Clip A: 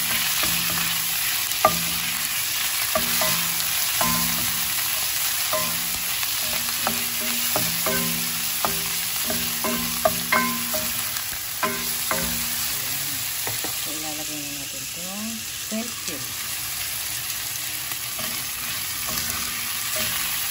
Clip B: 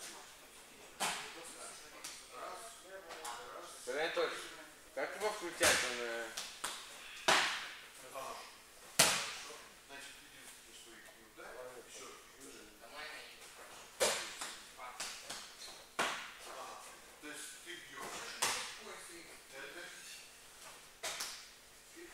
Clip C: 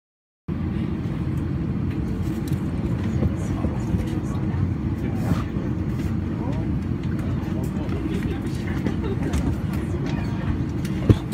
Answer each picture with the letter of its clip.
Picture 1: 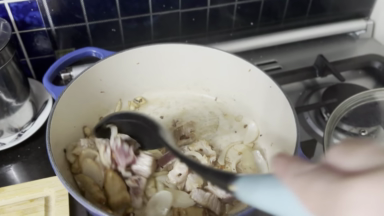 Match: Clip A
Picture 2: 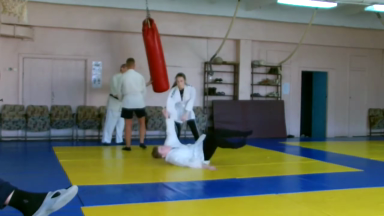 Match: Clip B